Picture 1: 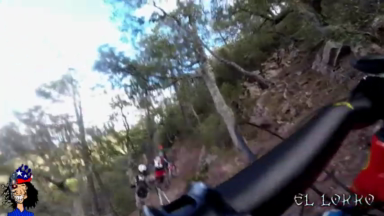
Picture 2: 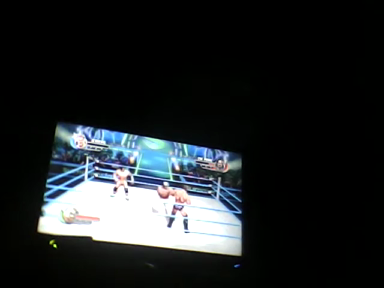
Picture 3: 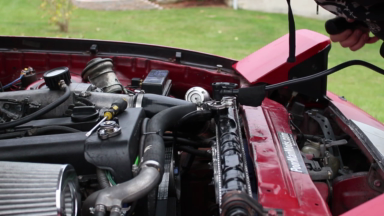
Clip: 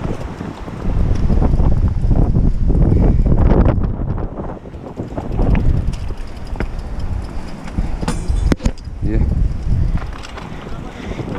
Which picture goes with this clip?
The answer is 1